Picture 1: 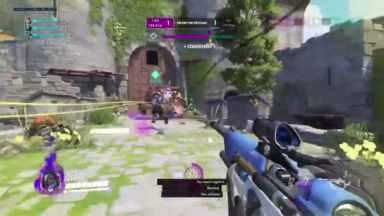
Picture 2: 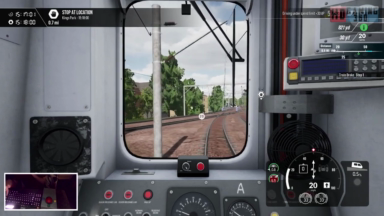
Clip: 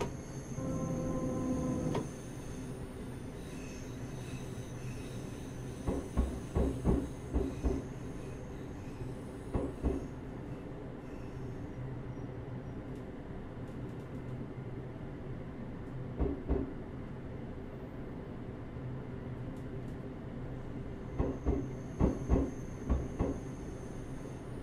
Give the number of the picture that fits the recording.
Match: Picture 2